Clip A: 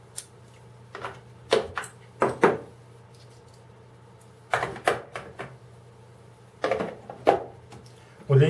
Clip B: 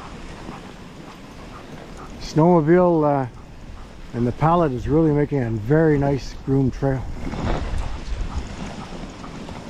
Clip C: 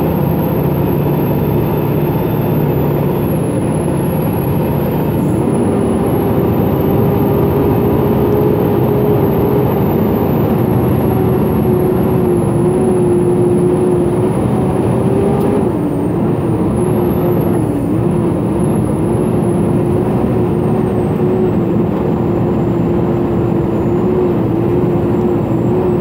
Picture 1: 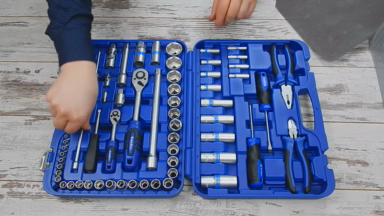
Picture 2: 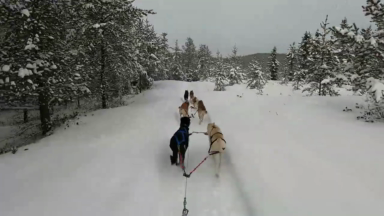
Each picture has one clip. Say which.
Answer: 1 A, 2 B